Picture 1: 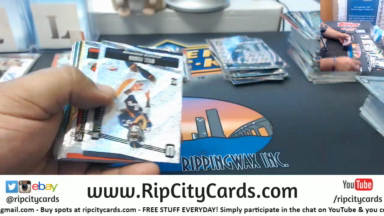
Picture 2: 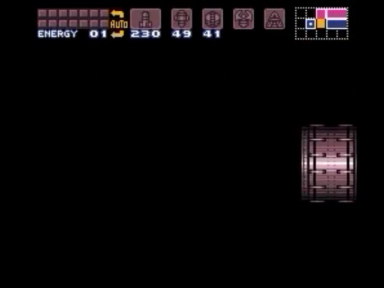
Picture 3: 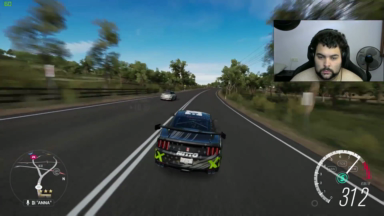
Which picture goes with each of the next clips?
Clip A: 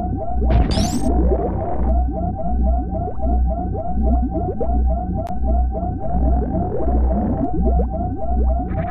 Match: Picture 2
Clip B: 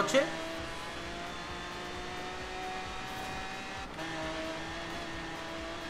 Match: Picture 3